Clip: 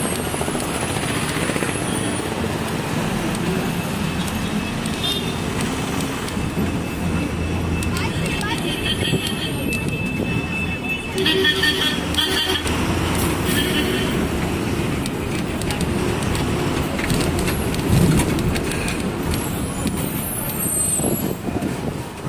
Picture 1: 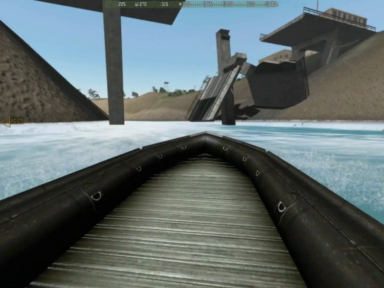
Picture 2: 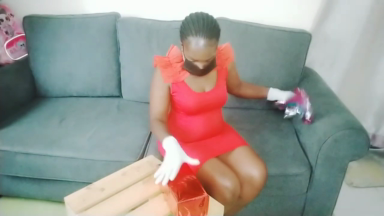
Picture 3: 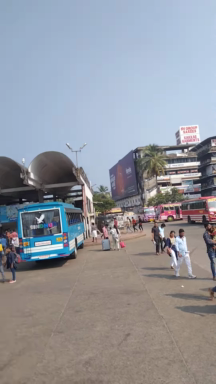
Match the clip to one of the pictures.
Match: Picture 3